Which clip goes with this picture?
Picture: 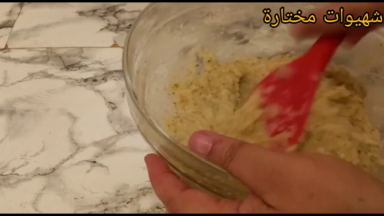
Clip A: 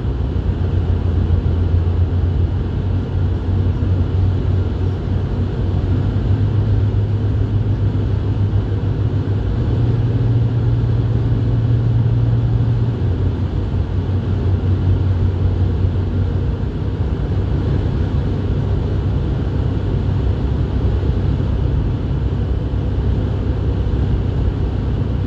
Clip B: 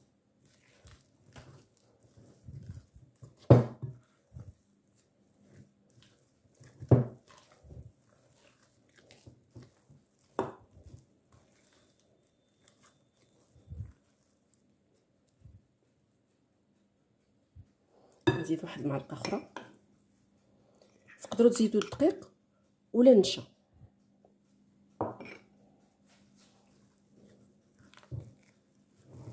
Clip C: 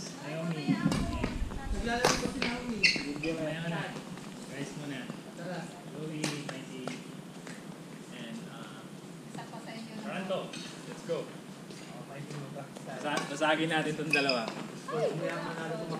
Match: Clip B